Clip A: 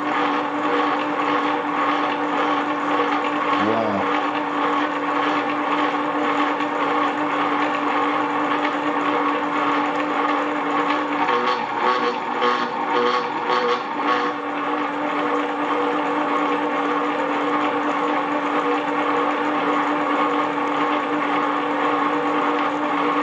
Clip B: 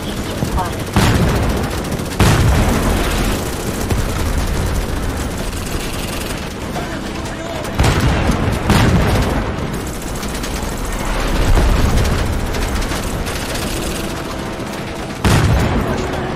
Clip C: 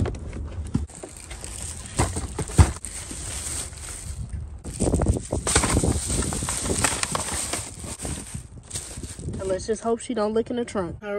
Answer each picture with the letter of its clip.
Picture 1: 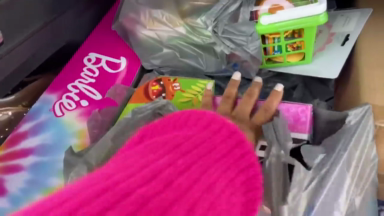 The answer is C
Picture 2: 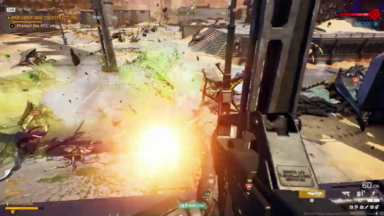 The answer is B